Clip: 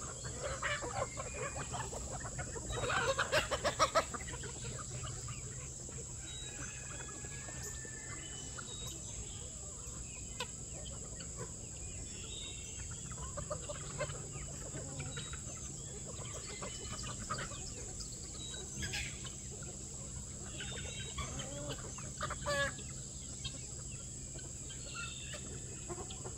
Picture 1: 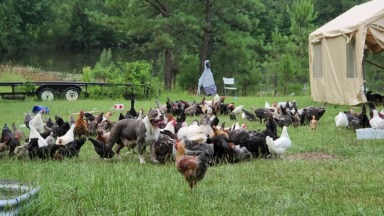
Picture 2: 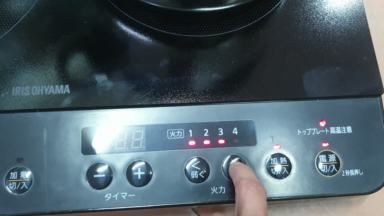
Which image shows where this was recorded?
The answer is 1